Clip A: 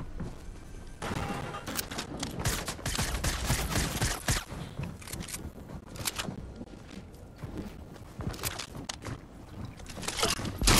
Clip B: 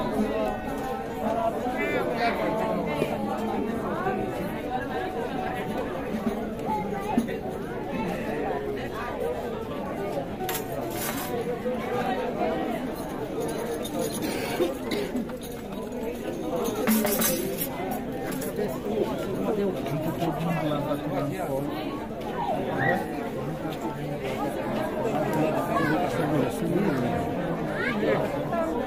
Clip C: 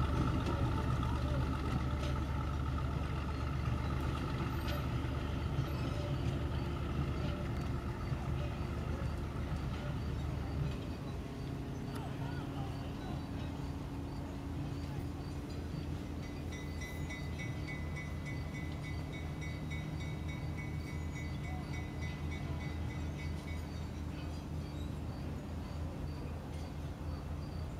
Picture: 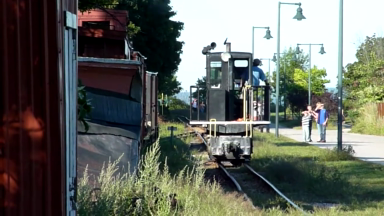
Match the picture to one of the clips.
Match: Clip C